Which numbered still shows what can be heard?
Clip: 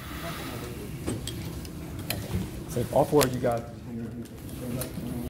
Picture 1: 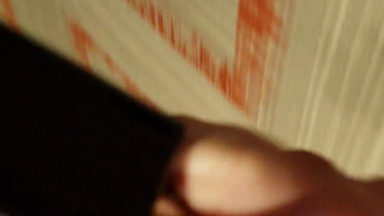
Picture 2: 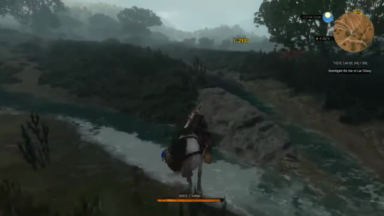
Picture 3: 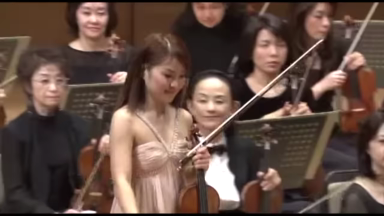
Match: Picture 1